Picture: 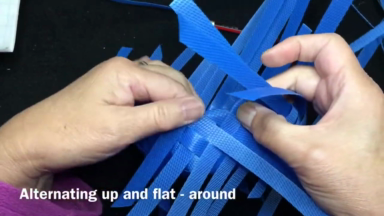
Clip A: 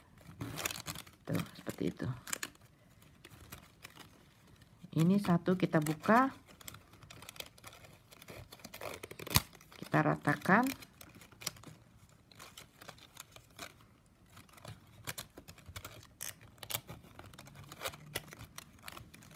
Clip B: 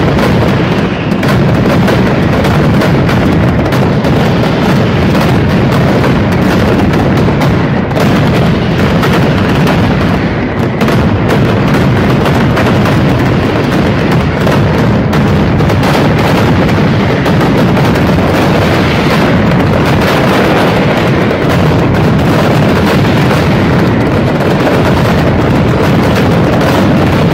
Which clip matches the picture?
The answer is A